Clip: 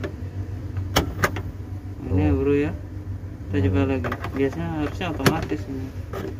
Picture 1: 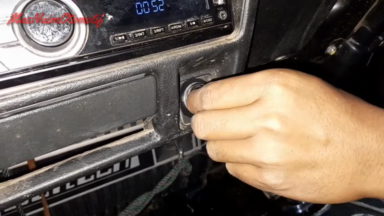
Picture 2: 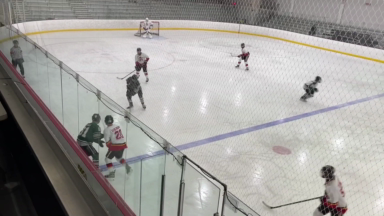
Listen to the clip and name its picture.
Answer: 1